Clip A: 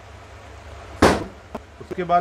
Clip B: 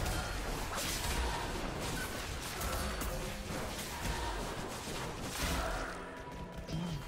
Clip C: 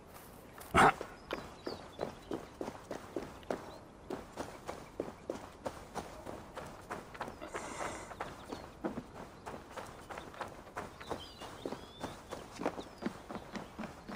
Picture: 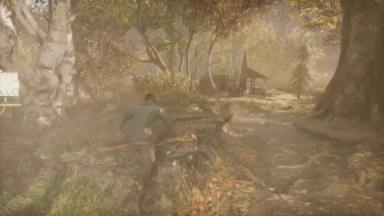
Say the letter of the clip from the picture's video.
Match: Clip C